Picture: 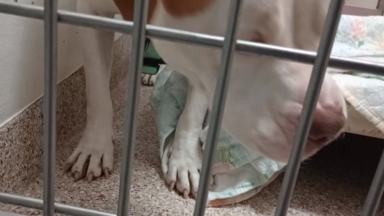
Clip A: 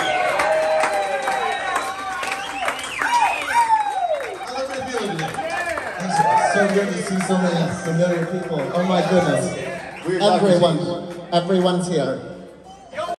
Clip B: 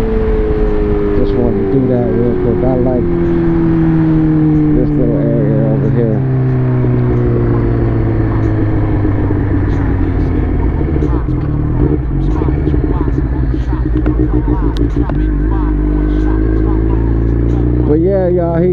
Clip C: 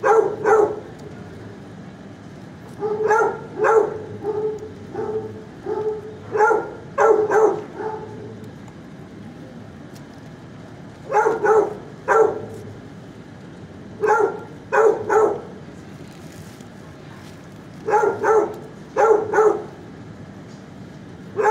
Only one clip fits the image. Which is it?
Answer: C